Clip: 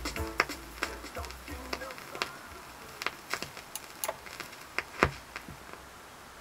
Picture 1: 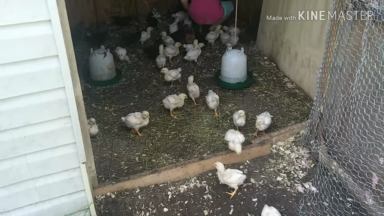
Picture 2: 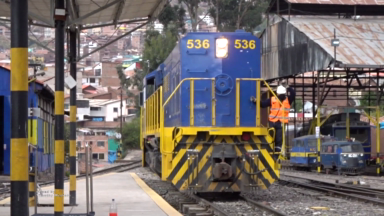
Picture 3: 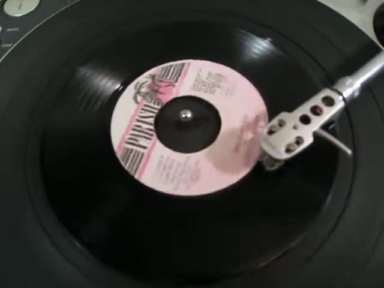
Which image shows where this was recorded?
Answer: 3